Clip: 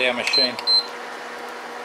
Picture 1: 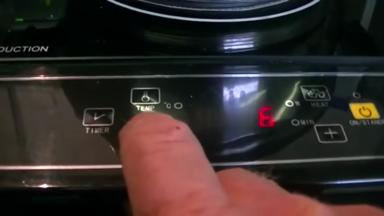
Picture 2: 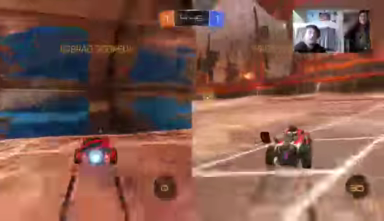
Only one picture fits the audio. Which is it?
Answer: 1